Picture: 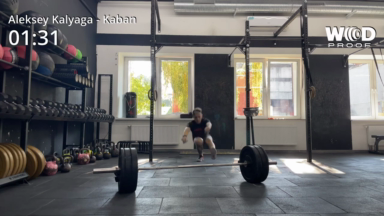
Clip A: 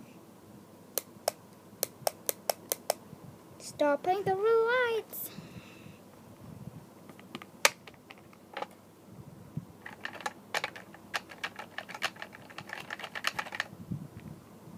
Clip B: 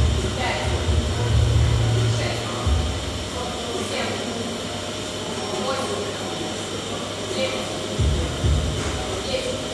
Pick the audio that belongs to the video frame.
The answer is B